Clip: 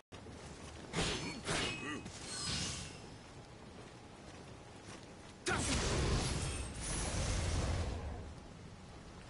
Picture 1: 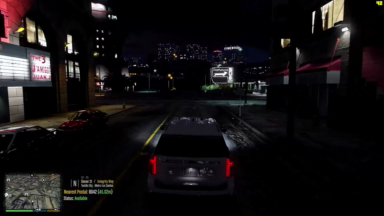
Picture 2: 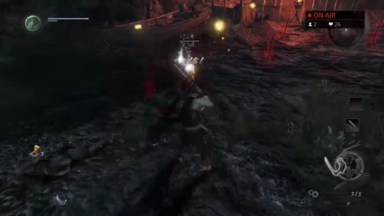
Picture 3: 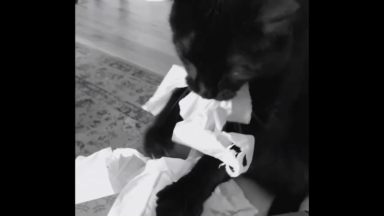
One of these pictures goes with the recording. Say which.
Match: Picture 2